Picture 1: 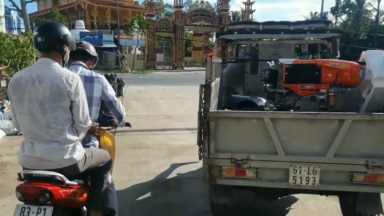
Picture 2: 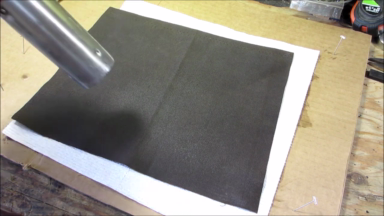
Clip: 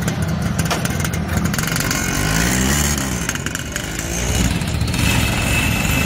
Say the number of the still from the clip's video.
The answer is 1